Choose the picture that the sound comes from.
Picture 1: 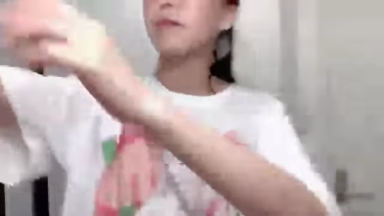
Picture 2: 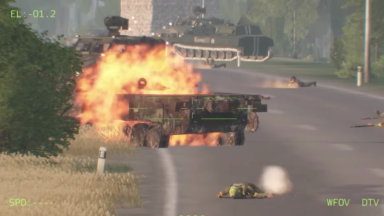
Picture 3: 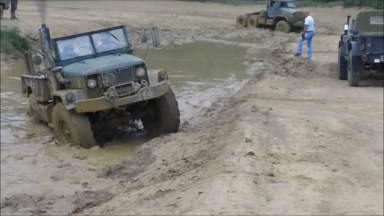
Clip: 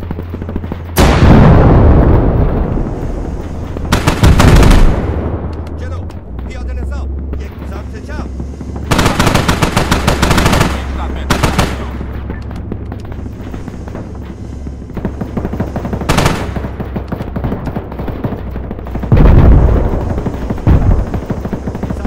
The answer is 2